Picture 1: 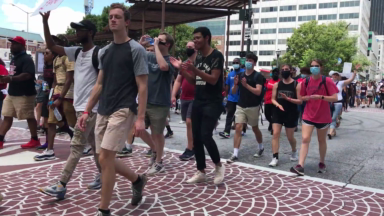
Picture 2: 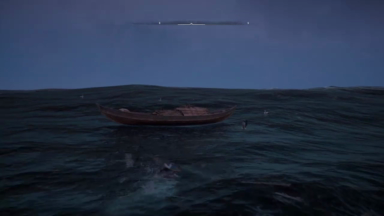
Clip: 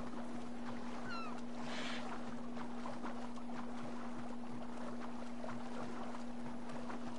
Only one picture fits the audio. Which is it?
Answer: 2